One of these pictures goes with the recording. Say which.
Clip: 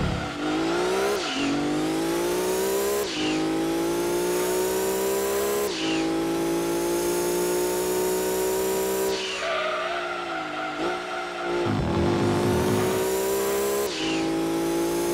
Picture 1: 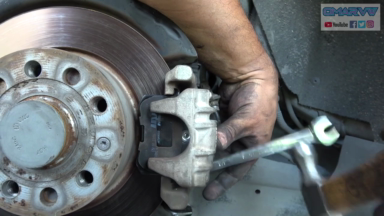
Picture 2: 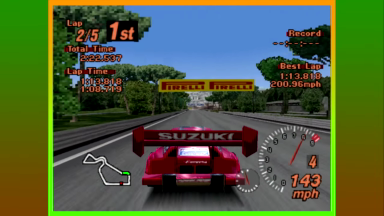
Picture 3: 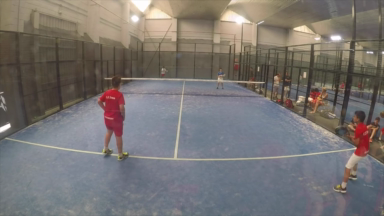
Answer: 2